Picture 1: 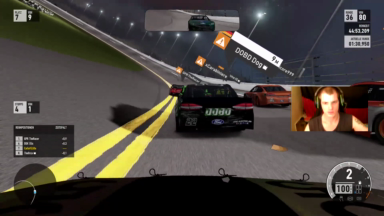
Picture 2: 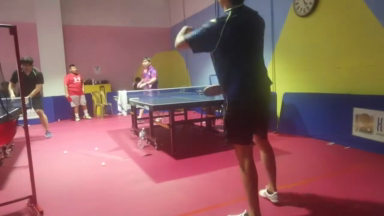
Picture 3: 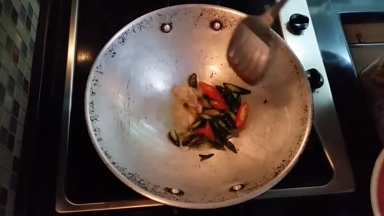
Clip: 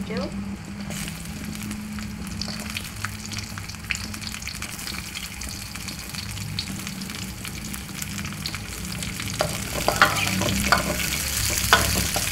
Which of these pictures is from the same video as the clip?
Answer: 3